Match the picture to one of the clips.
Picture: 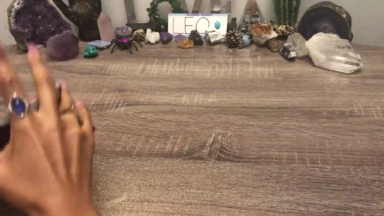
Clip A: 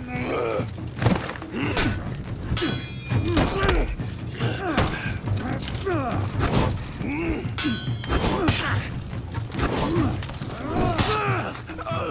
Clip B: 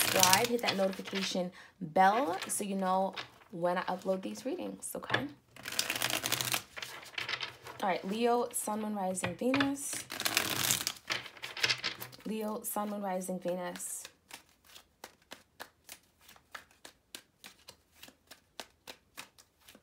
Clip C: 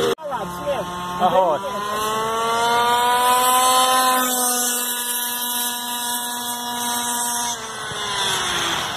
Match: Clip B